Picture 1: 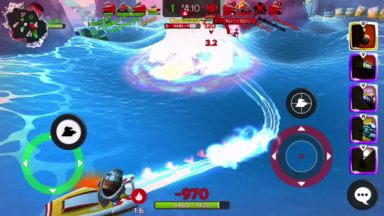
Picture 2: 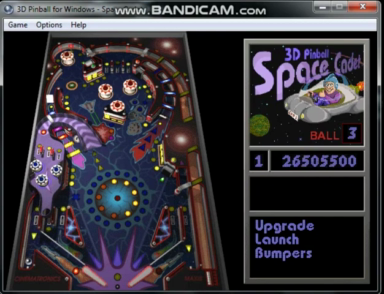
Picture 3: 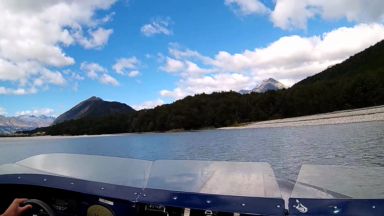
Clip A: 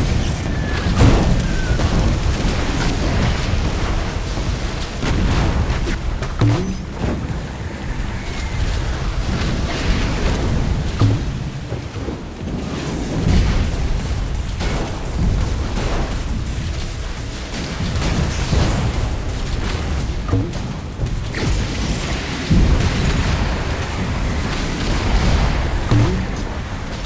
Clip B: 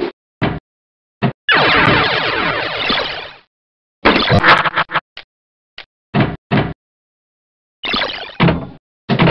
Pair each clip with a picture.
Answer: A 1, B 2